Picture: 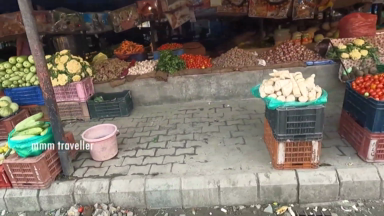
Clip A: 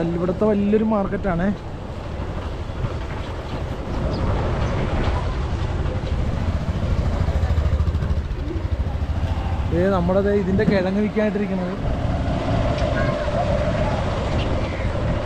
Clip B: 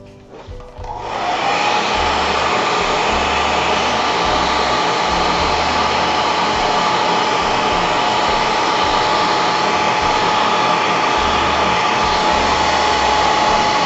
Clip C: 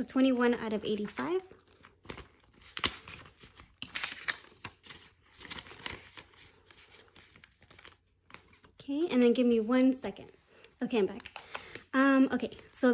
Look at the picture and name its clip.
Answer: A